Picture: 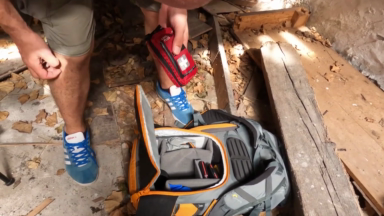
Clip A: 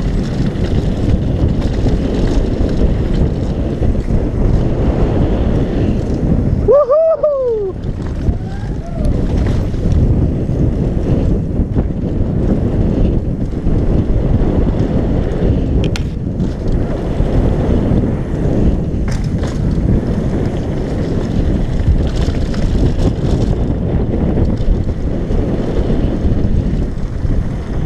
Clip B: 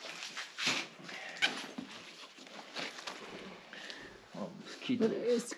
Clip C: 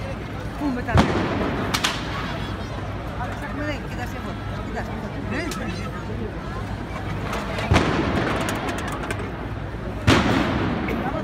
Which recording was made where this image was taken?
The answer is B